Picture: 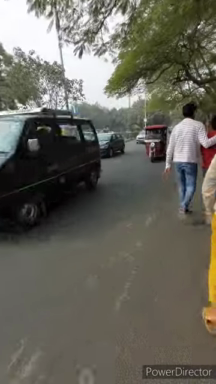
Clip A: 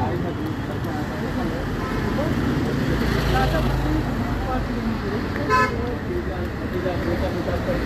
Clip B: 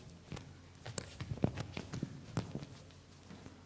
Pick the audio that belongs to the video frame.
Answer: A